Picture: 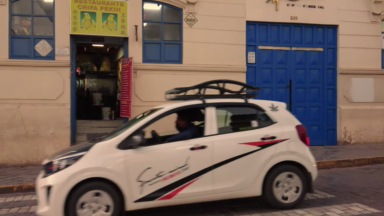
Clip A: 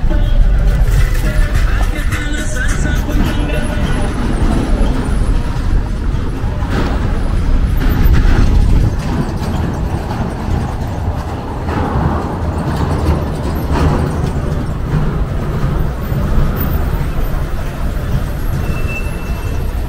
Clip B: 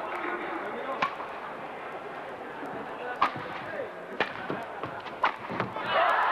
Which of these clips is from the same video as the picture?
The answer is A